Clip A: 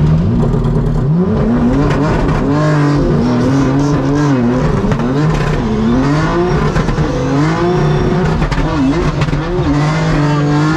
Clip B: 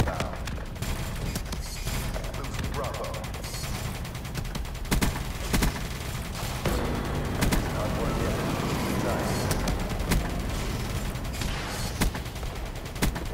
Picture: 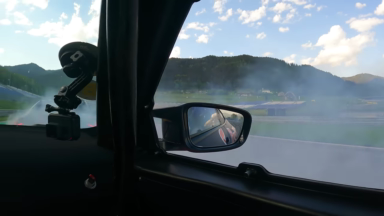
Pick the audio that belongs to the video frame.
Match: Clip A